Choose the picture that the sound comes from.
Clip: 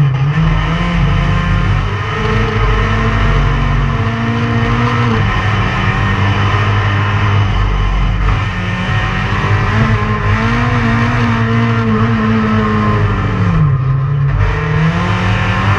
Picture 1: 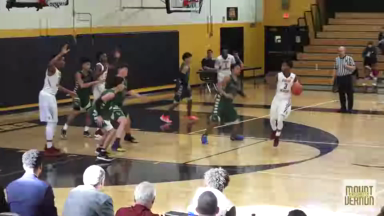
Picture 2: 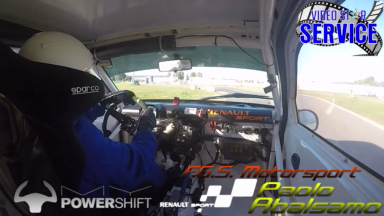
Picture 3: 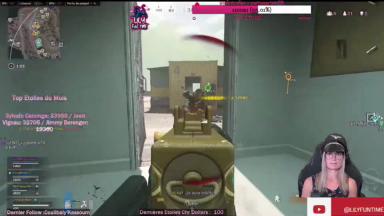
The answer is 2